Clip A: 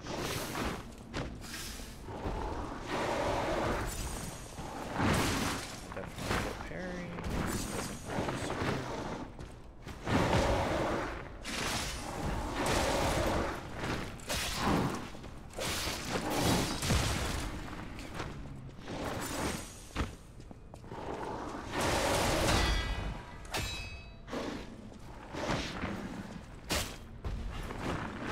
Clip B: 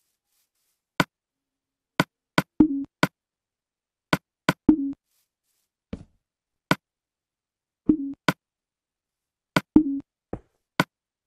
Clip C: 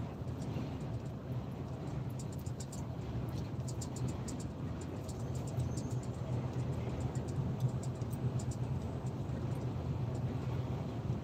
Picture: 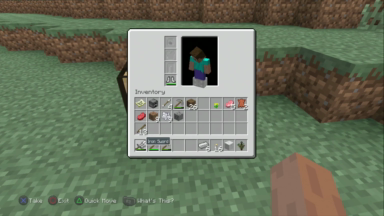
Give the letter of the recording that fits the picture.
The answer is B